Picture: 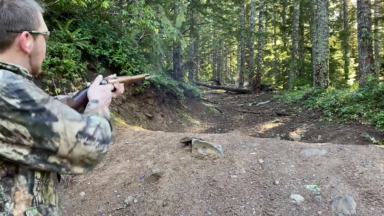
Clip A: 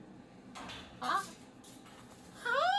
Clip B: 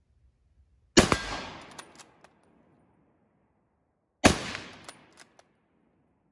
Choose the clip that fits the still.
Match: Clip B